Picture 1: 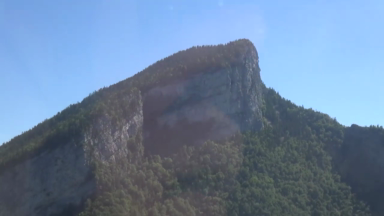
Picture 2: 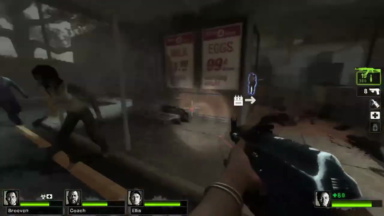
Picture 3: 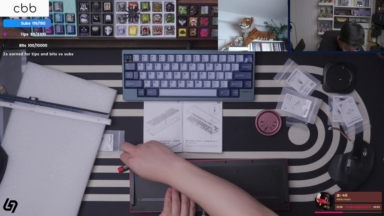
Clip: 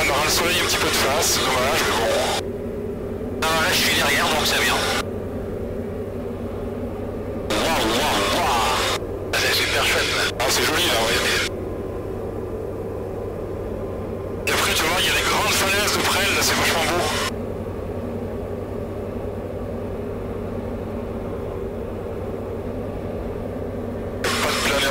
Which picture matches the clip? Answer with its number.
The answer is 1